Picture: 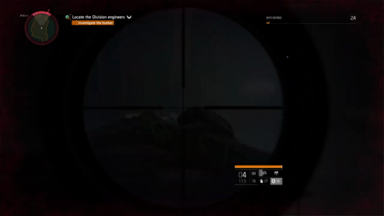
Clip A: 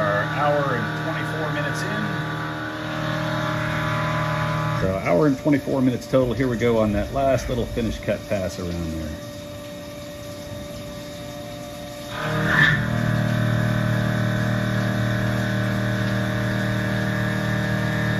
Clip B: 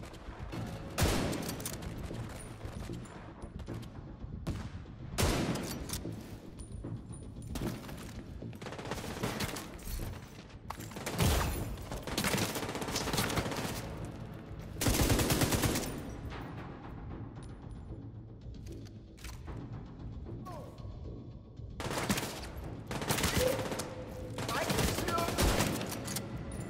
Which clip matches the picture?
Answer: B